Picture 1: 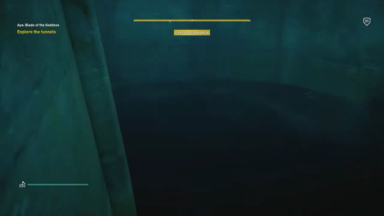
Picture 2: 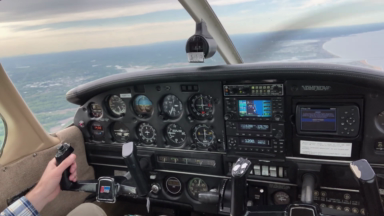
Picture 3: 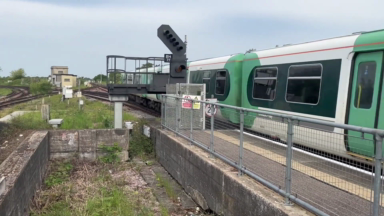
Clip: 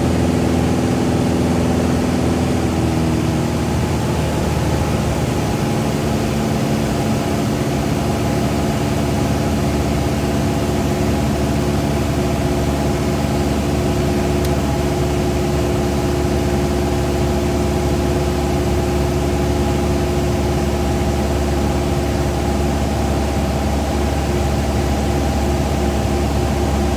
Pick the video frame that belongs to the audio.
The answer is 2